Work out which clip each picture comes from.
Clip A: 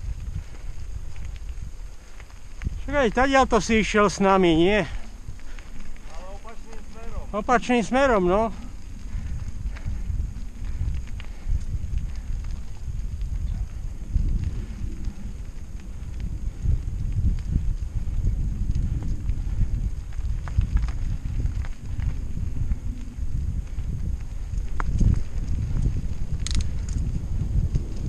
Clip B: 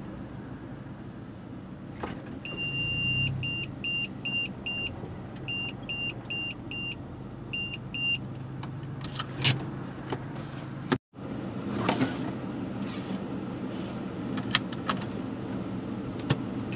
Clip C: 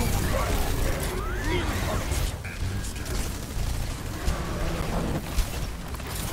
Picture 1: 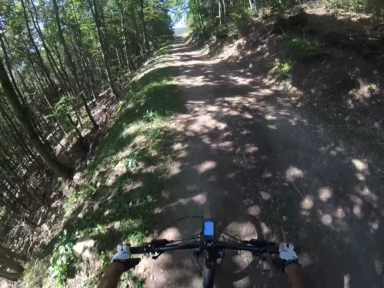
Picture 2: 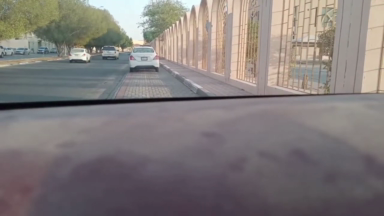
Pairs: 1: A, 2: B